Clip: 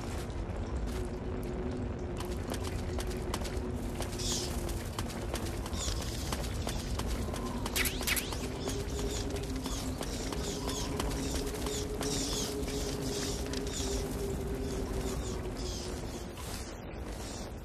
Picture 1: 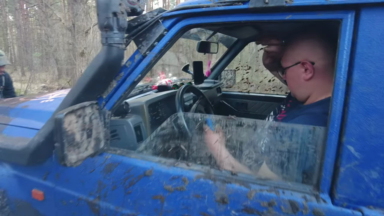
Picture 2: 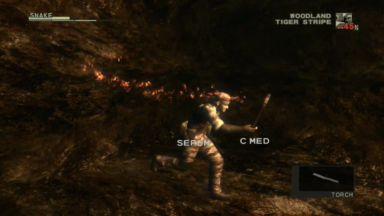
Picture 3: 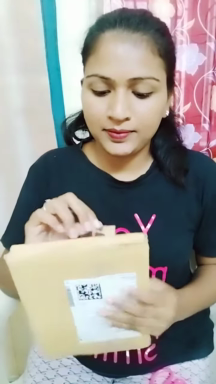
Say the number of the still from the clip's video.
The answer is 2